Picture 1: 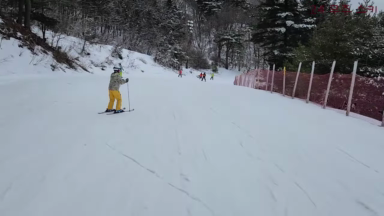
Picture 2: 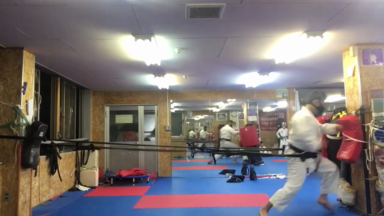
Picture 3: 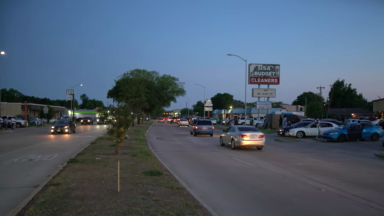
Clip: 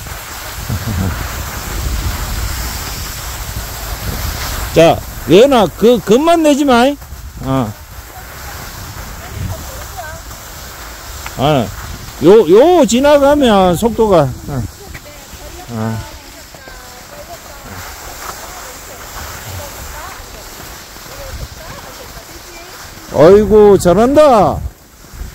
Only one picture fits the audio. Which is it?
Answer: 1